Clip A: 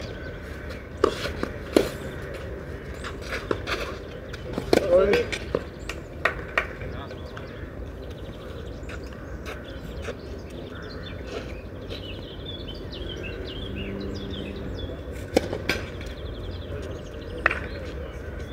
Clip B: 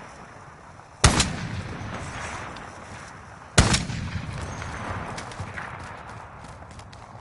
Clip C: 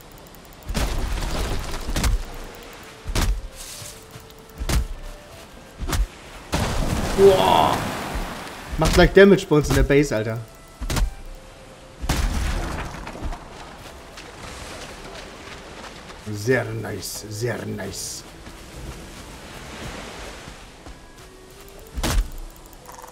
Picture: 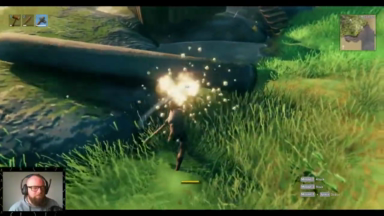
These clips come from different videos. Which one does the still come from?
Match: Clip C